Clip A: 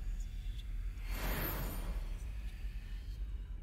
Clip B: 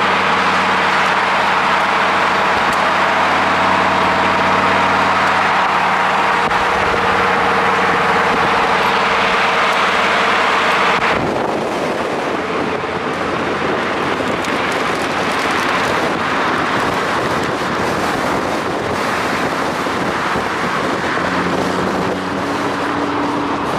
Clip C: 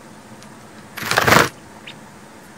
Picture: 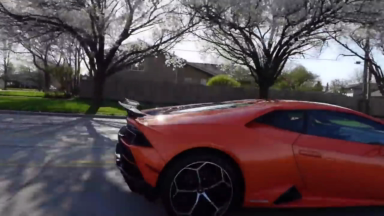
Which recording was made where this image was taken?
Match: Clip B